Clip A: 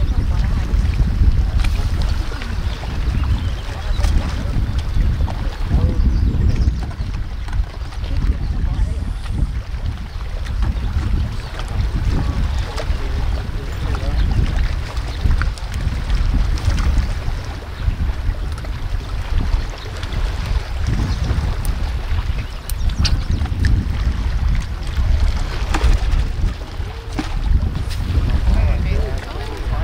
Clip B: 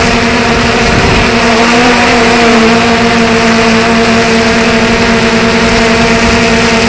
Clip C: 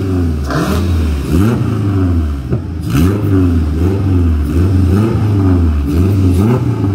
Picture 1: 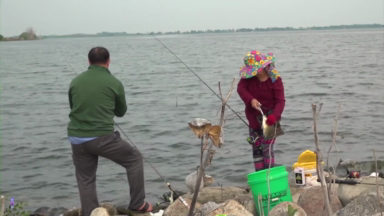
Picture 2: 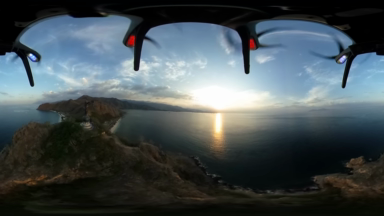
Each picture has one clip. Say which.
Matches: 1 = A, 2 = B